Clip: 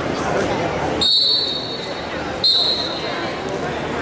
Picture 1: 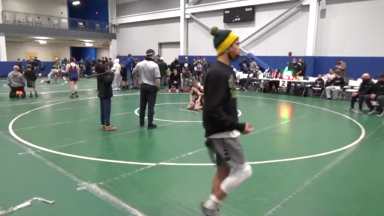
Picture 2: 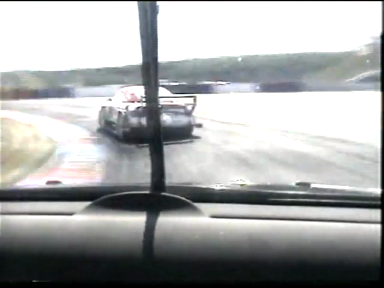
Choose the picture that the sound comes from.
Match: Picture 1